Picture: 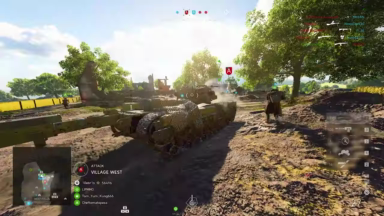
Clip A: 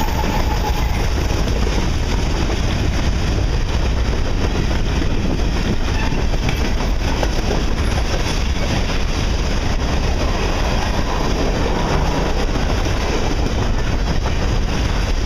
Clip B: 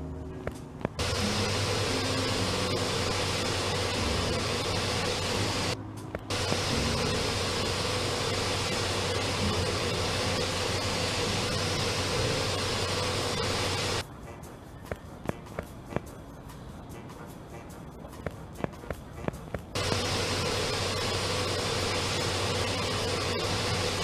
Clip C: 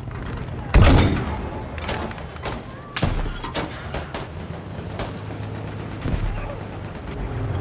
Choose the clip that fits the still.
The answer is C